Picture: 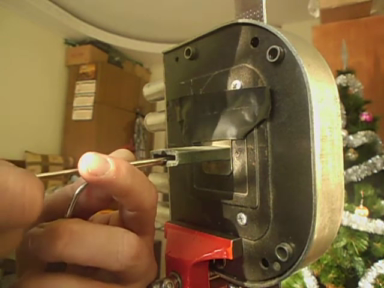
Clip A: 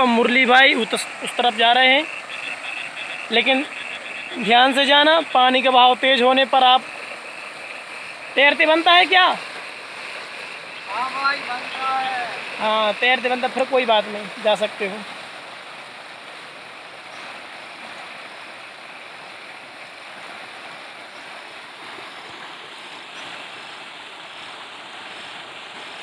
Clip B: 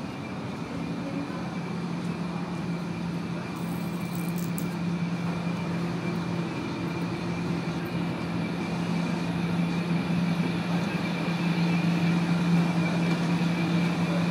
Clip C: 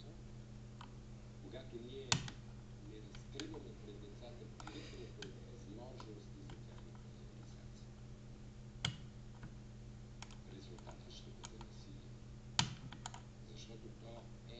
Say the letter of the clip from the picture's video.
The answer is C